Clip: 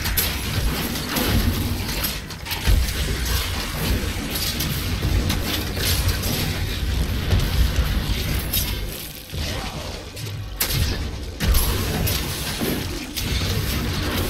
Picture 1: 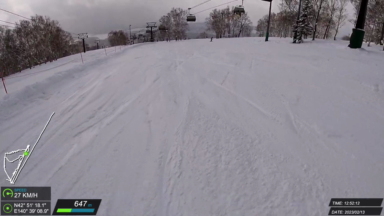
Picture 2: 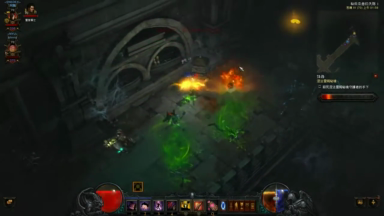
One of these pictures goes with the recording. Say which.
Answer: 2